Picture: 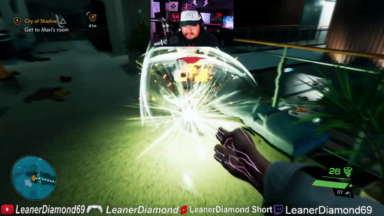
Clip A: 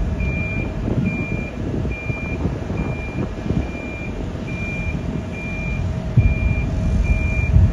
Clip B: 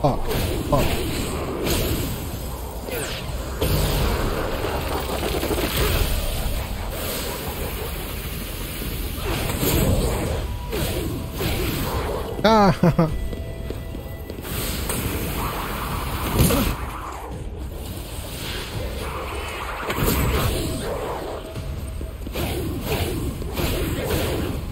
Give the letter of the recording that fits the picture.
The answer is B